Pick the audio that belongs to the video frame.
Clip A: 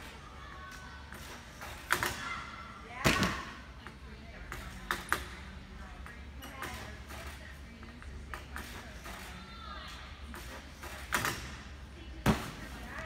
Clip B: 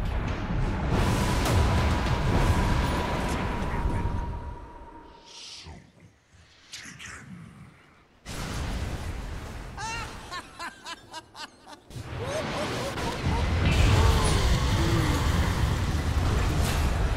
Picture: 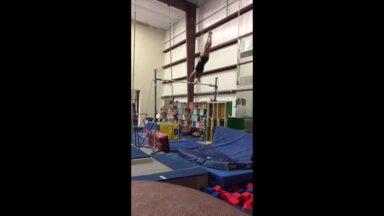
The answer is A